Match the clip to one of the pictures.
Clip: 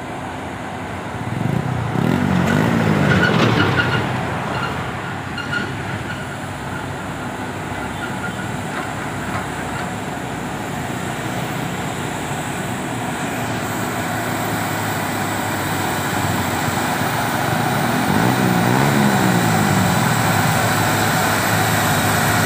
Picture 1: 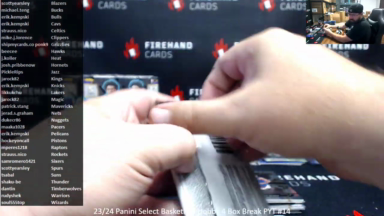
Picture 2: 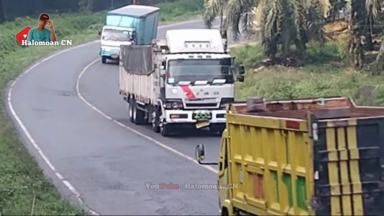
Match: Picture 2